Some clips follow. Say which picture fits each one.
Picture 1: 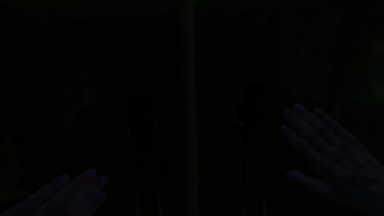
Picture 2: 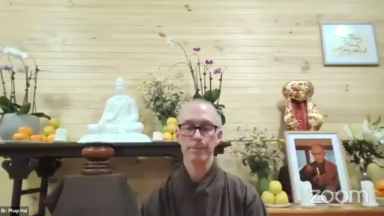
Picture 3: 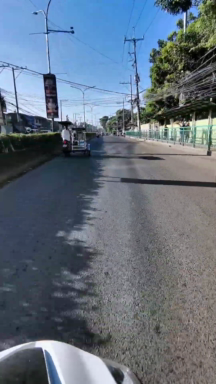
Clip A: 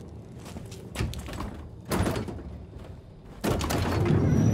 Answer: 1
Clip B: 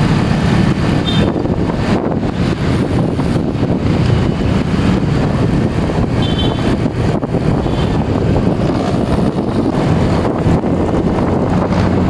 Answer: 3